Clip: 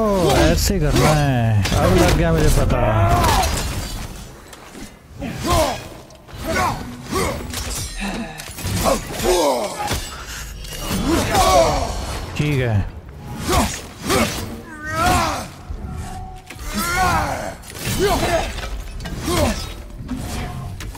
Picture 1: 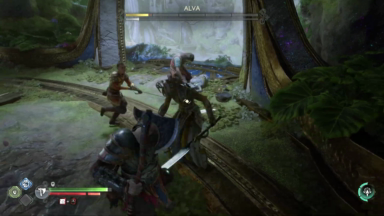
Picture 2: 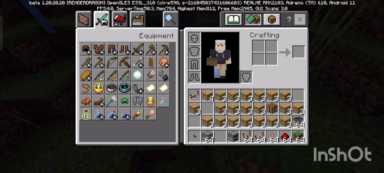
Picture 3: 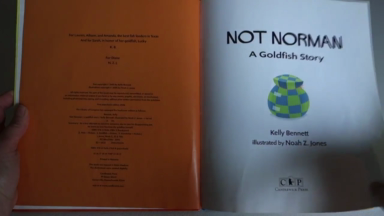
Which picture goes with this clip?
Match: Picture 1